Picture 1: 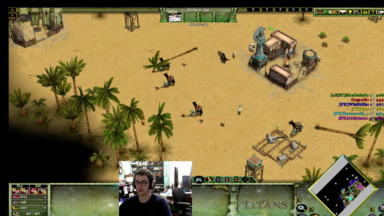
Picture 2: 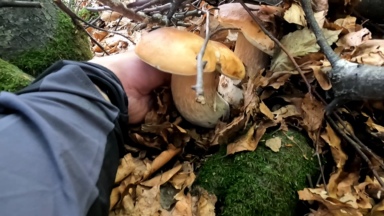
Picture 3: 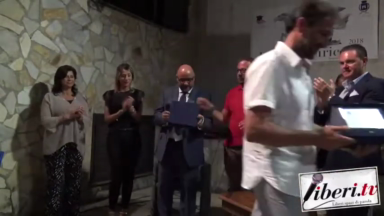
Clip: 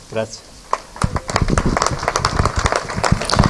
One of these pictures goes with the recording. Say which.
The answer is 3